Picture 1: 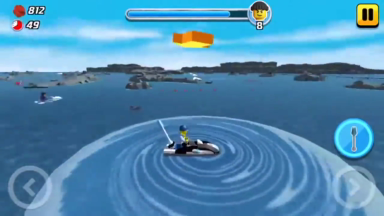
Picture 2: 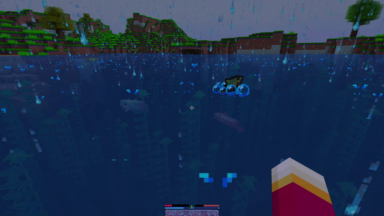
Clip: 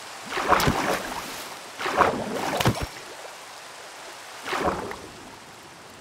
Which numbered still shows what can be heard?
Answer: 2